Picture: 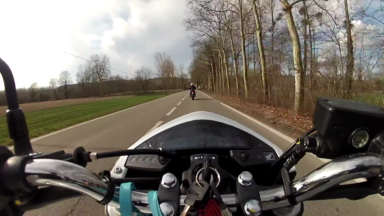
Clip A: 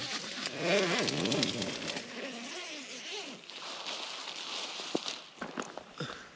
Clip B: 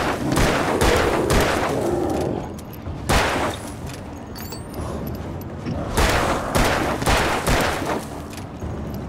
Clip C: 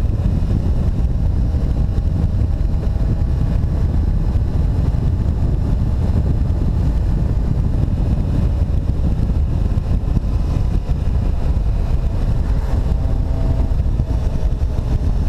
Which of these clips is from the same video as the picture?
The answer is C